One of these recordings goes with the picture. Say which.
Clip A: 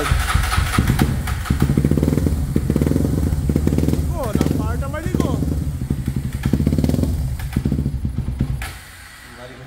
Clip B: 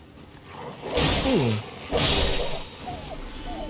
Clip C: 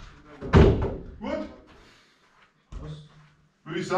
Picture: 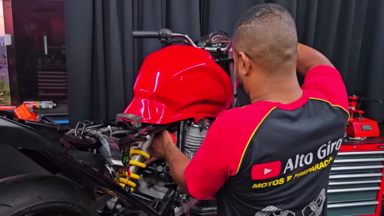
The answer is A